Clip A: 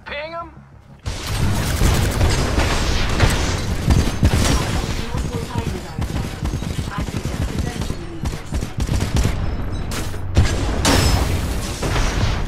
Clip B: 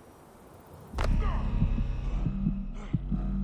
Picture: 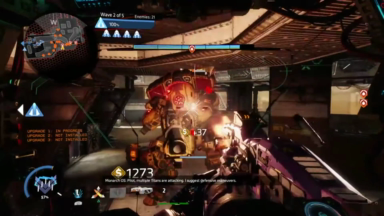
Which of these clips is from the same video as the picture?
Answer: A